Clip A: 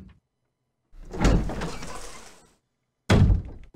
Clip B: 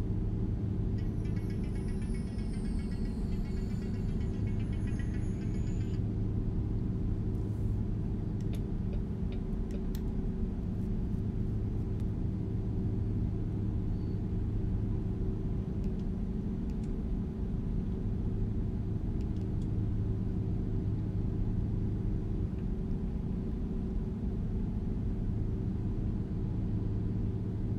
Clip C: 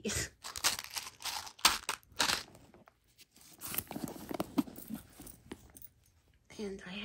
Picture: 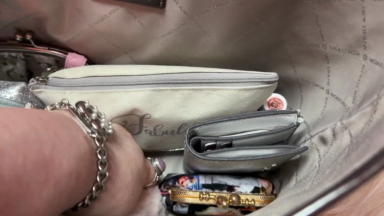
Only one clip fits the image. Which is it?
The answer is C